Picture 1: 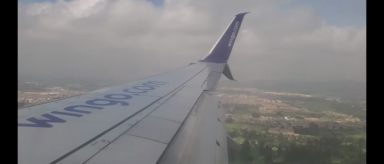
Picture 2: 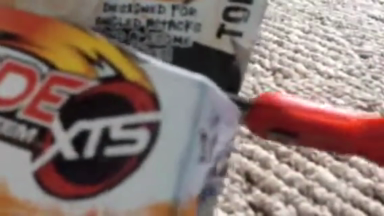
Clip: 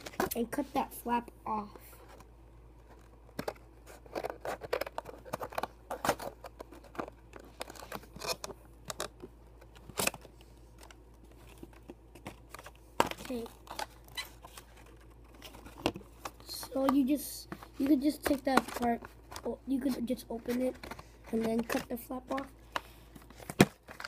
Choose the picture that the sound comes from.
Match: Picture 2